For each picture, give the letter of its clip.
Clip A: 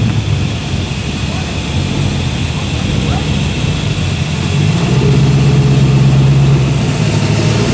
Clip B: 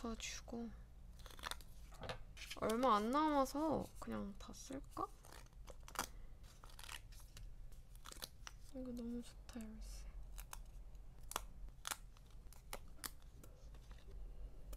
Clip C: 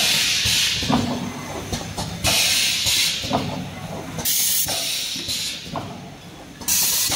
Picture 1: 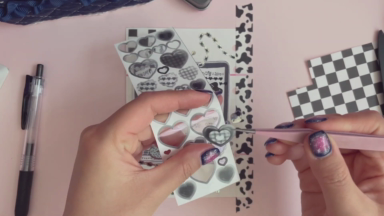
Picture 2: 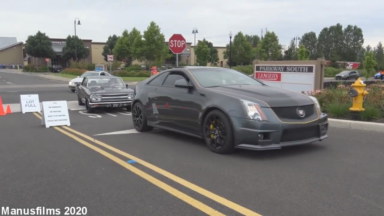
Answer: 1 B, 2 A